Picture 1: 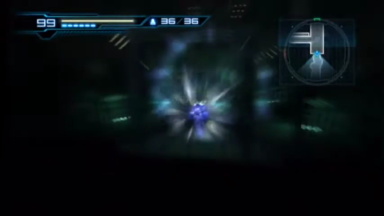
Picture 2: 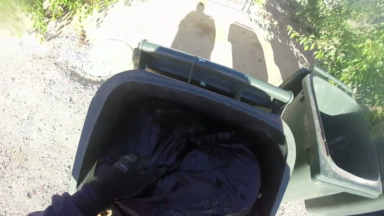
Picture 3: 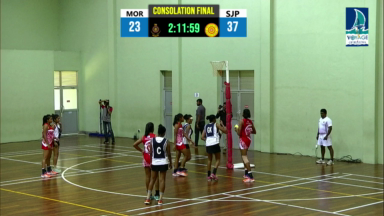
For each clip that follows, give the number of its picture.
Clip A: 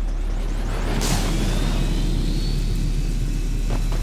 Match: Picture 1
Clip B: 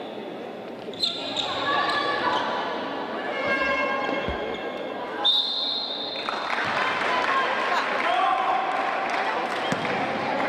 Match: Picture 3